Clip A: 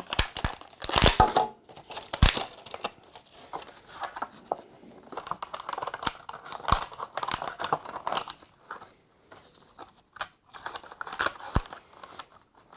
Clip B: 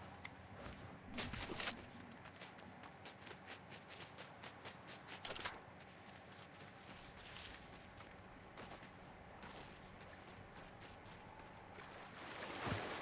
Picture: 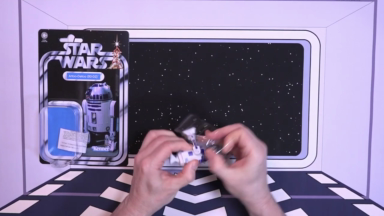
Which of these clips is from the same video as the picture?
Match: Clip A